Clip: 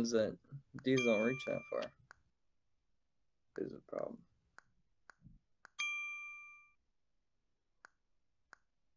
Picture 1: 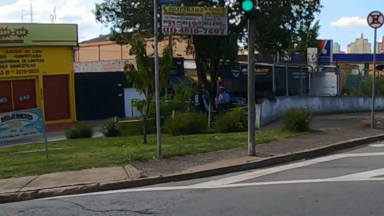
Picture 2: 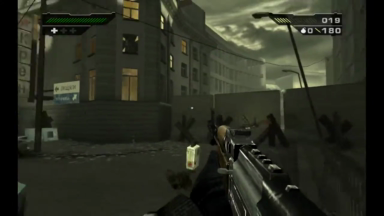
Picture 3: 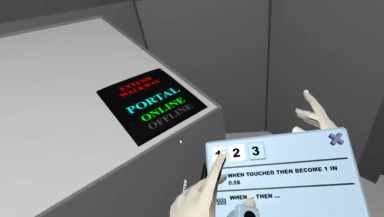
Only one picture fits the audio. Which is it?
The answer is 3